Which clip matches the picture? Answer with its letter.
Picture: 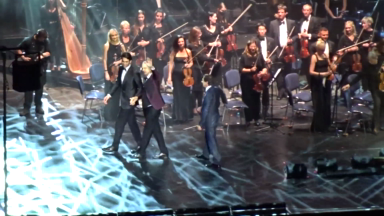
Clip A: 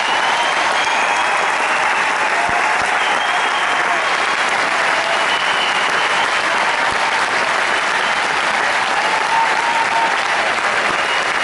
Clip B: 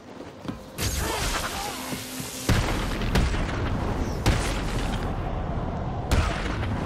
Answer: A